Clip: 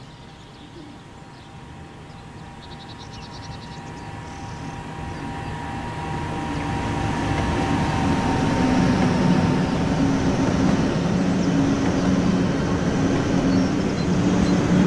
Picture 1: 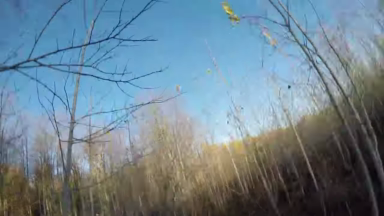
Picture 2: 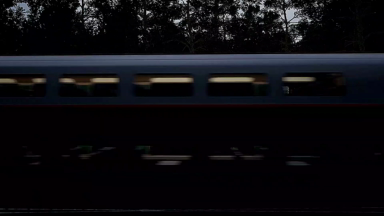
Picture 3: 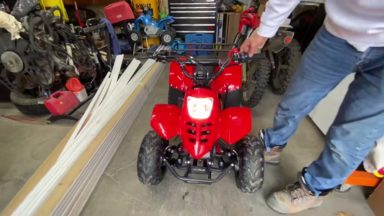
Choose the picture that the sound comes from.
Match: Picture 2